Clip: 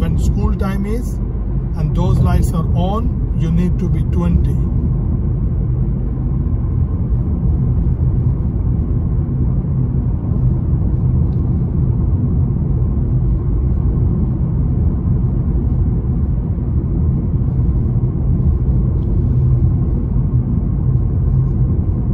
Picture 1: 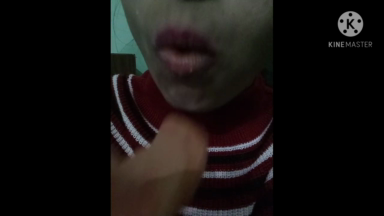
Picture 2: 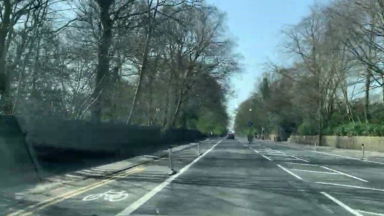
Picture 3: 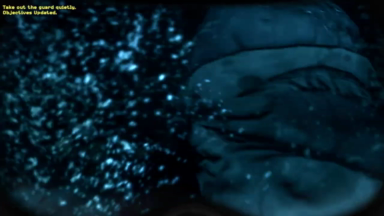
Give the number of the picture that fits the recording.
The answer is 2